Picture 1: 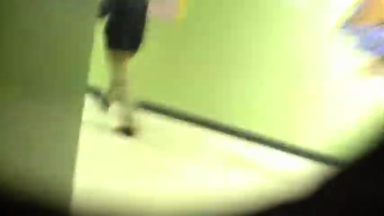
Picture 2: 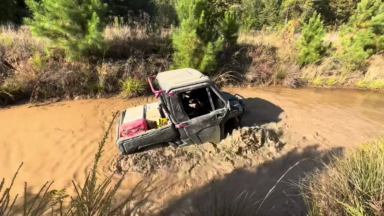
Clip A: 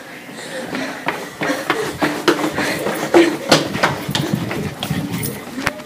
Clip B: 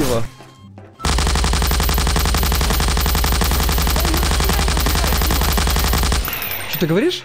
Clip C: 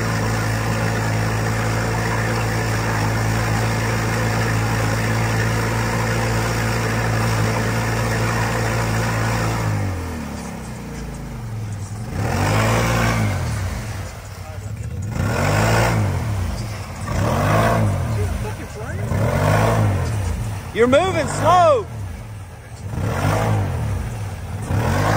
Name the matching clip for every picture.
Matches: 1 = A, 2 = C